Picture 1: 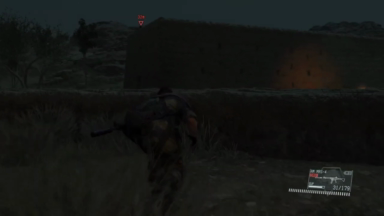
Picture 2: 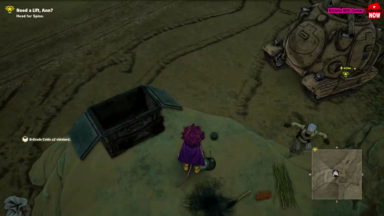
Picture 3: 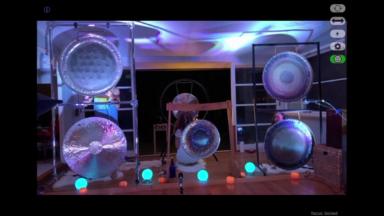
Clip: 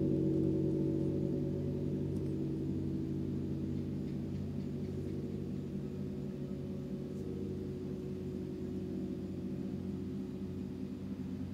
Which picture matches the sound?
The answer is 3